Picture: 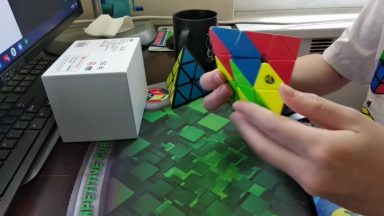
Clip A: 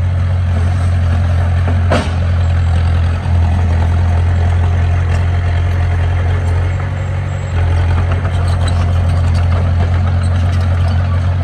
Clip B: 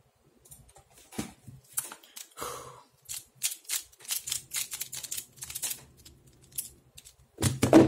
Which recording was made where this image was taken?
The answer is B